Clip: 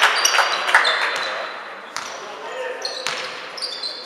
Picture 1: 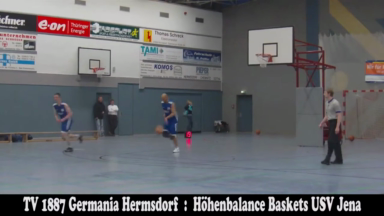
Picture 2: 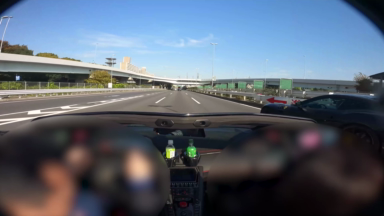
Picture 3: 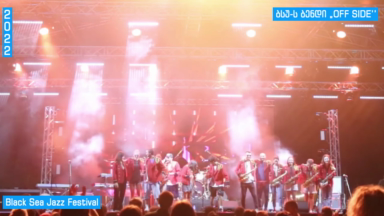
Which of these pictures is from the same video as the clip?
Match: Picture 1